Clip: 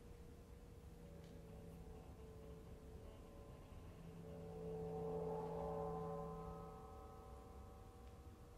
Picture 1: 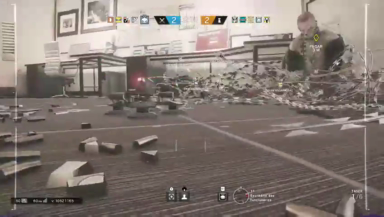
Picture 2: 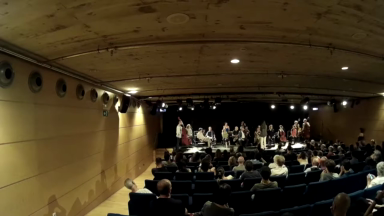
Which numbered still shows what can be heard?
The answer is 2